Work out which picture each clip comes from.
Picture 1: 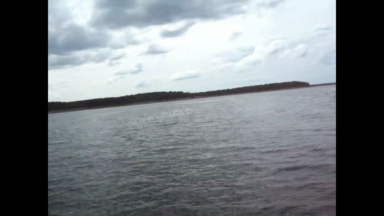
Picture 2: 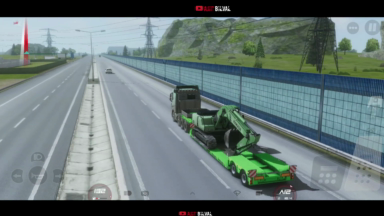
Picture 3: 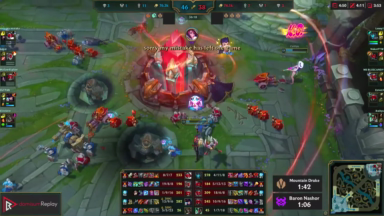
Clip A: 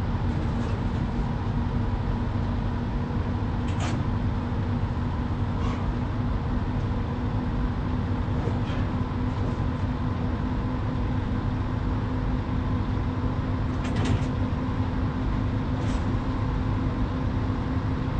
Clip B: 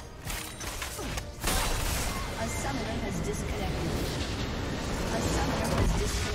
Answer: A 2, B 3